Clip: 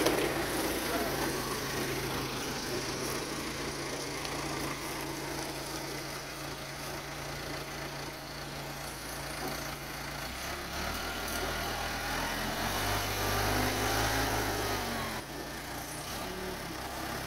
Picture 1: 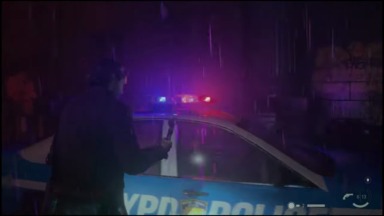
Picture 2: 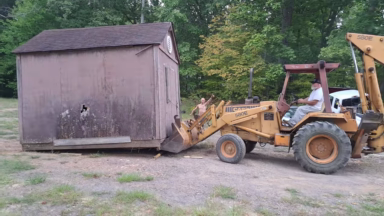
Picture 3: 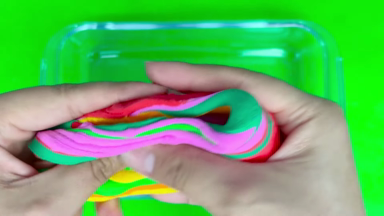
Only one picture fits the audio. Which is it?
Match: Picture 2